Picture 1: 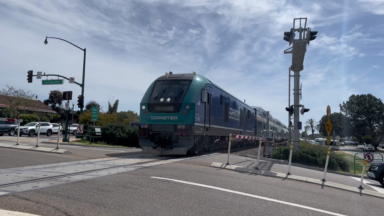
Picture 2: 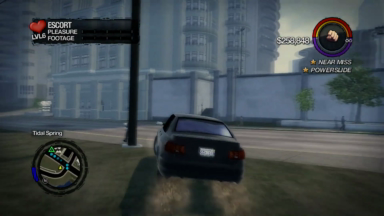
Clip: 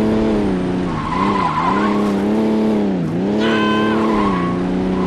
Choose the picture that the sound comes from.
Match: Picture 2